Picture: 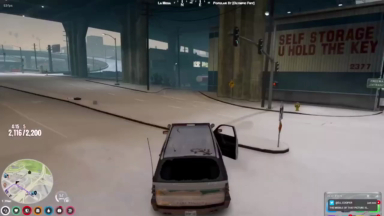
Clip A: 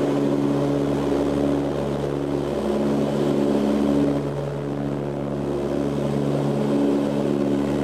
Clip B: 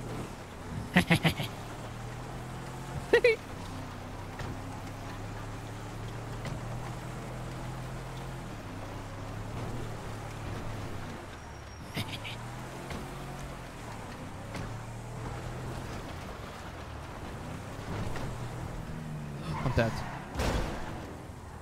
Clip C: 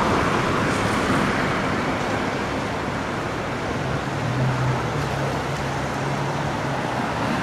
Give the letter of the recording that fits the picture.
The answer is B